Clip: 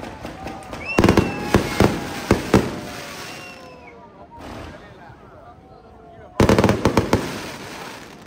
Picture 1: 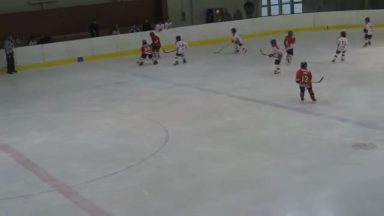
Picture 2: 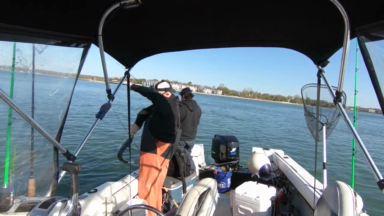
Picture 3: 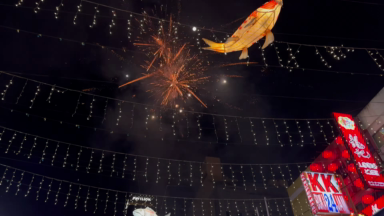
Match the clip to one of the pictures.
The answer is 3